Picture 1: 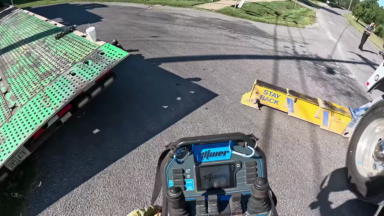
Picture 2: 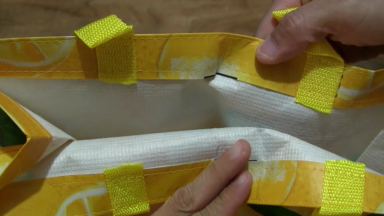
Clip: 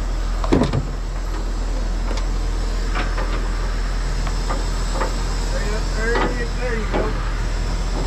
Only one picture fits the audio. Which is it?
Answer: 1